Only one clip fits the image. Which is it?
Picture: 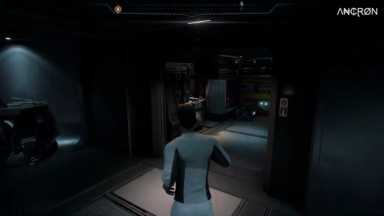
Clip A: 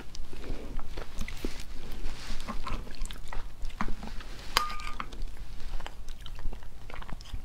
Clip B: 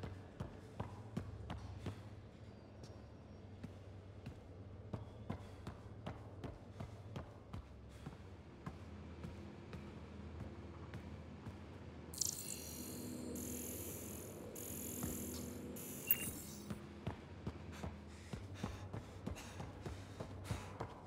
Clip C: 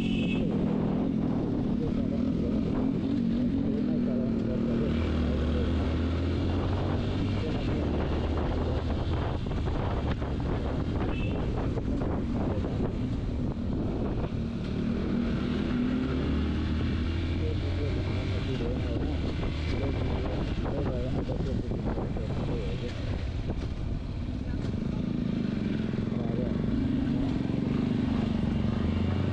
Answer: B